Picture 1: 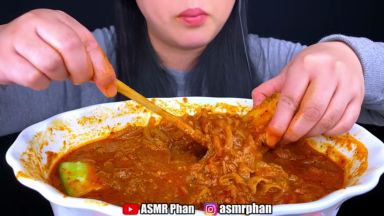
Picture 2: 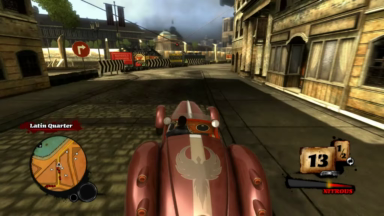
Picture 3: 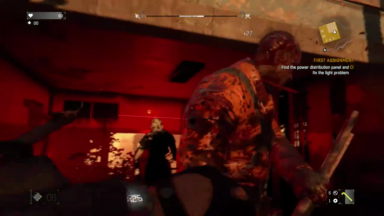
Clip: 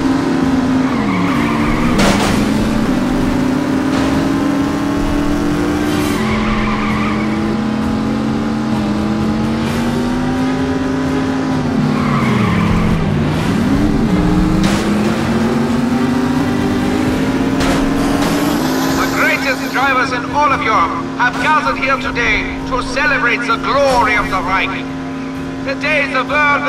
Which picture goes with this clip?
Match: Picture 2